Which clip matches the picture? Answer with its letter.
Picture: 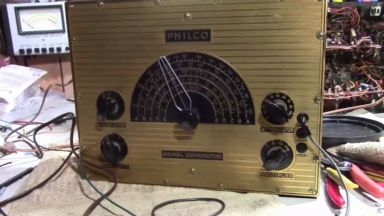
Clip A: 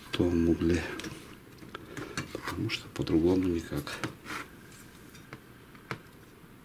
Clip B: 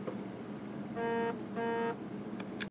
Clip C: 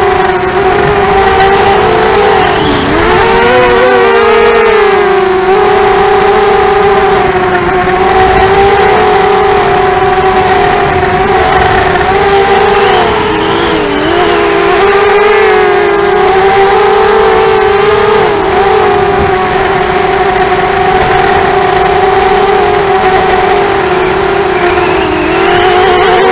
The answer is B